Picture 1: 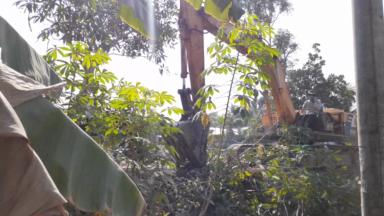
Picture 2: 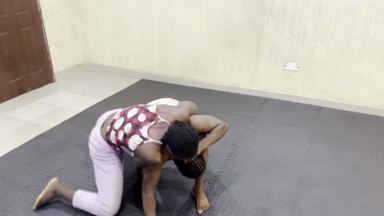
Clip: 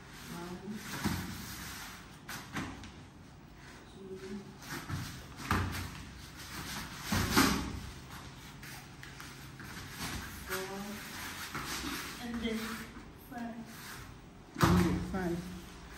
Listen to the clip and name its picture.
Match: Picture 2